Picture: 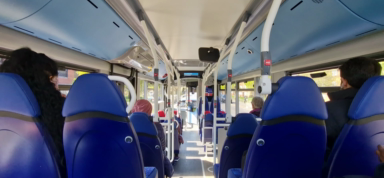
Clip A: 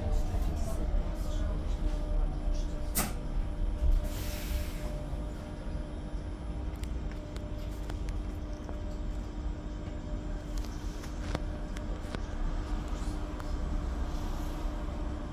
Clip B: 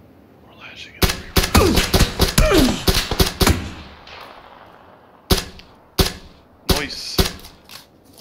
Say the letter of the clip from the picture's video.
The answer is A